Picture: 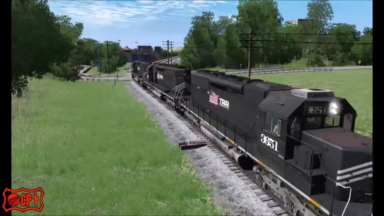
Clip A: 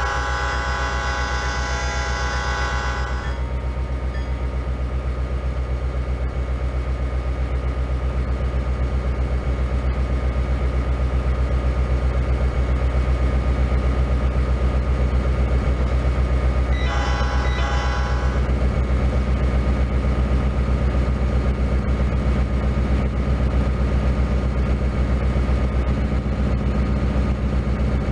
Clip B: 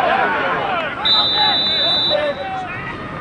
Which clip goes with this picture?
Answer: A